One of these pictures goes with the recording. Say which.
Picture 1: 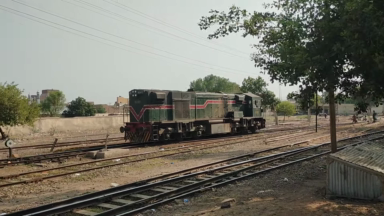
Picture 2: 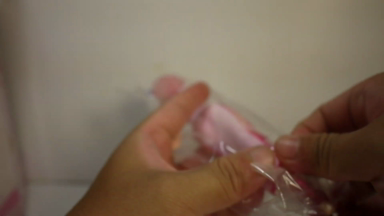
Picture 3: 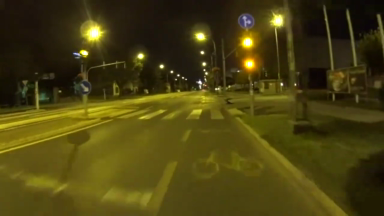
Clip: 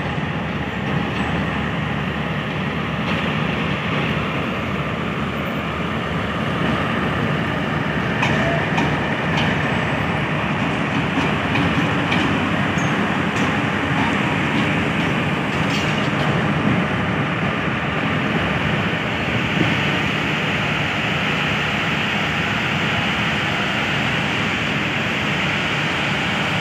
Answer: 1